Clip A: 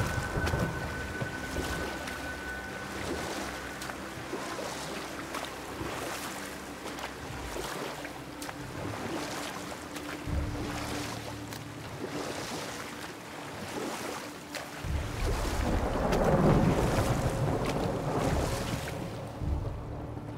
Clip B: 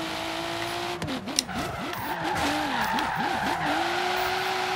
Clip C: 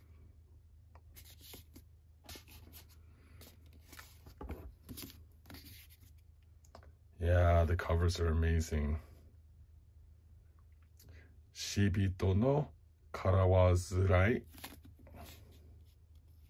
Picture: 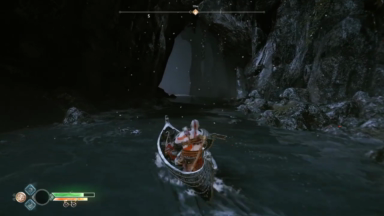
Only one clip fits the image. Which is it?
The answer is A